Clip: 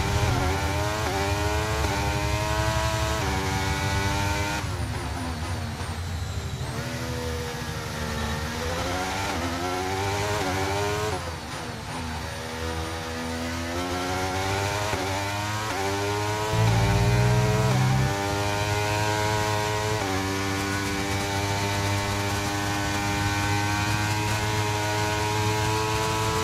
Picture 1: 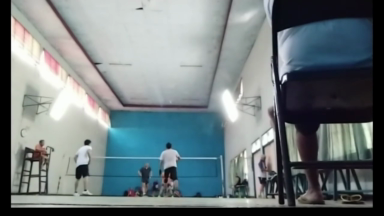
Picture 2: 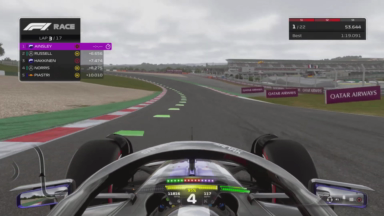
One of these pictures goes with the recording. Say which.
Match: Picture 2